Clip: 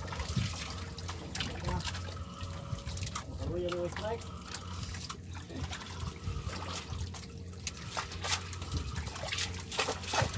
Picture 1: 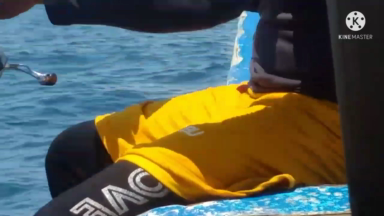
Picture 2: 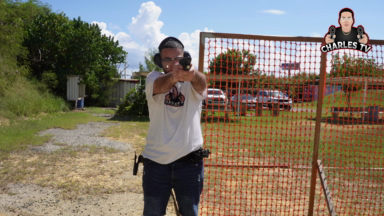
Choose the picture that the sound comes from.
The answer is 1